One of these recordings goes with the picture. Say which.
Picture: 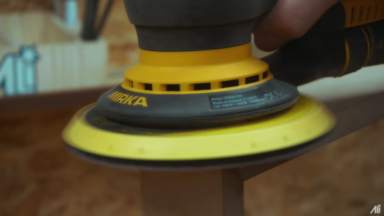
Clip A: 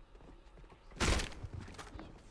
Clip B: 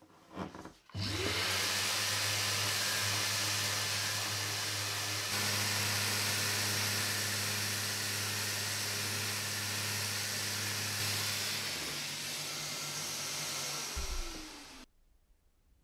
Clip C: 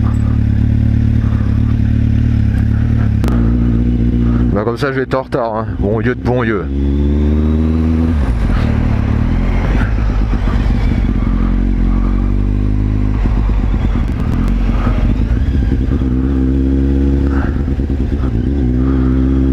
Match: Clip B